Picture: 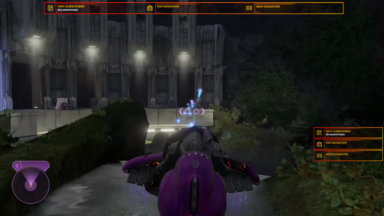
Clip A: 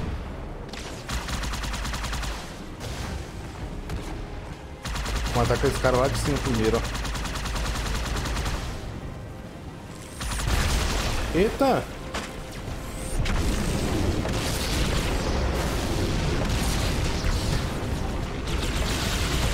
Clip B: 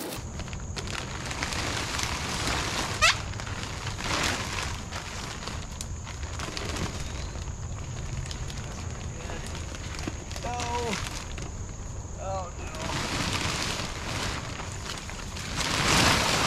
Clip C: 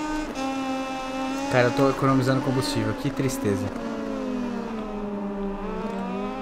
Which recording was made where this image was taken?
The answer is A